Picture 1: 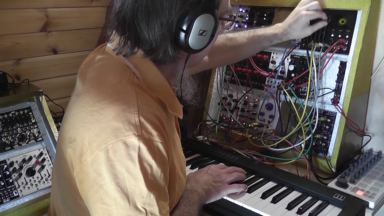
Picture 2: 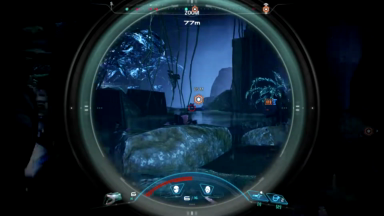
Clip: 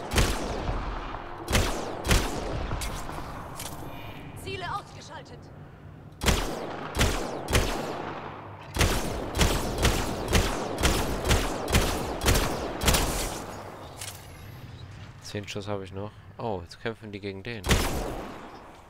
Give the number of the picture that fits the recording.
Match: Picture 2